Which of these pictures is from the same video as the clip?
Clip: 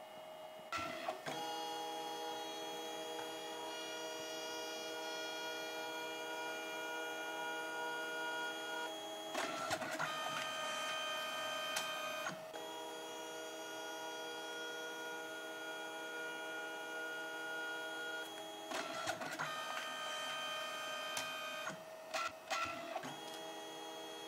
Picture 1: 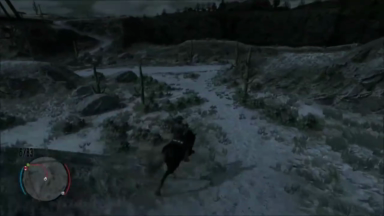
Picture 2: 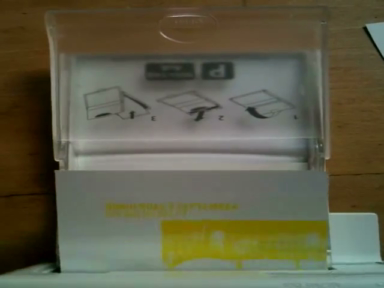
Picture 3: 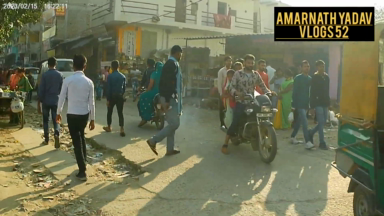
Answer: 2